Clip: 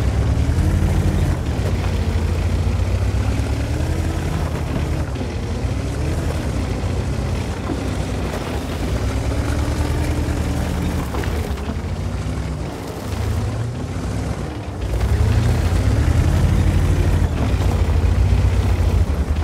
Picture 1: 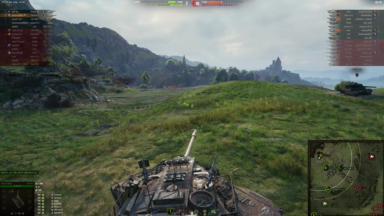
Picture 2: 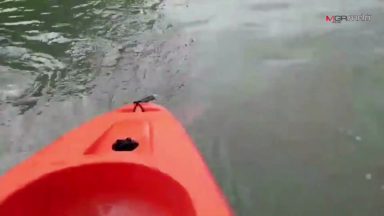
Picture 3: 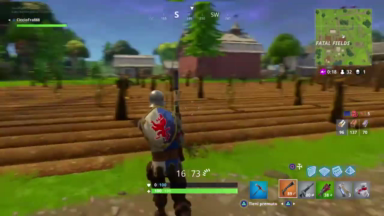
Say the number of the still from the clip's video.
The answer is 1